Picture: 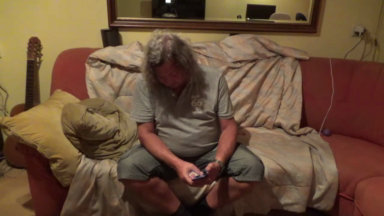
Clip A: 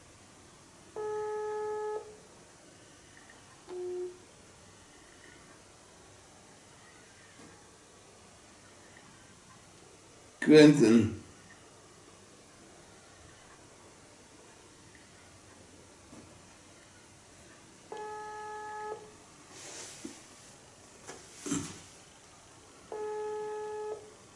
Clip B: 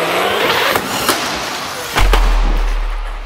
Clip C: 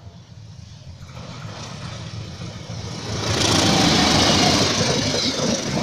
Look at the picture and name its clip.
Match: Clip A